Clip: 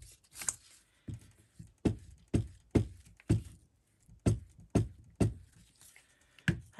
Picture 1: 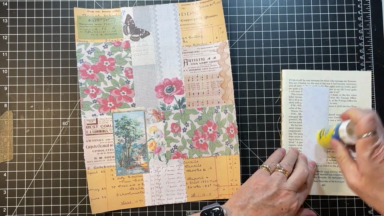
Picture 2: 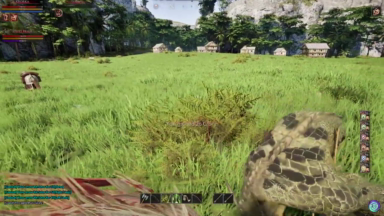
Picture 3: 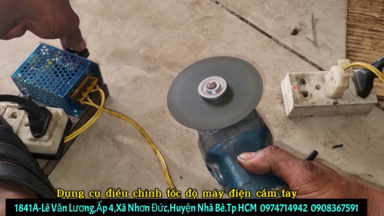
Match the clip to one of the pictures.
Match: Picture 1